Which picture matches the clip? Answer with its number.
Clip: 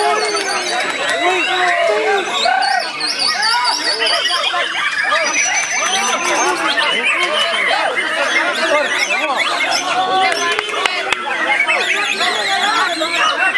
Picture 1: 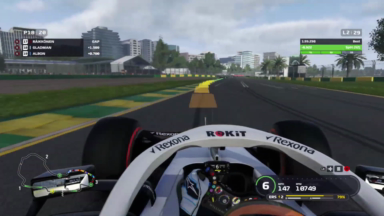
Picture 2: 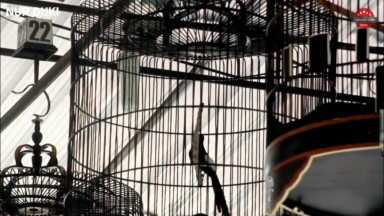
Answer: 2